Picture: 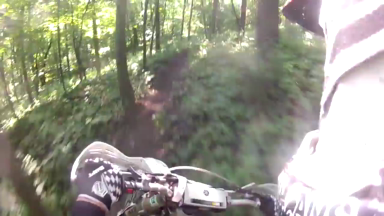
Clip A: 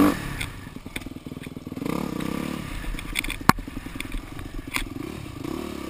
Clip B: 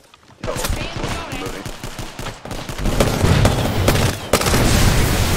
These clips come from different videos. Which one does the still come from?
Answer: A